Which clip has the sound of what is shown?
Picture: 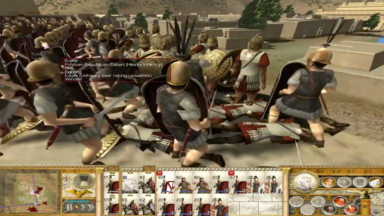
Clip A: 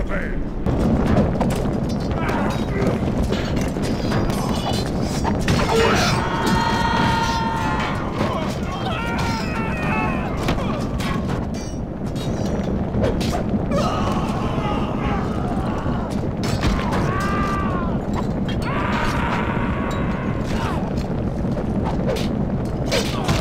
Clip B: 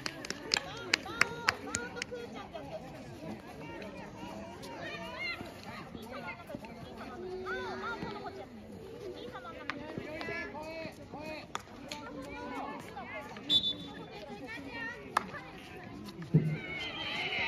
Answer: A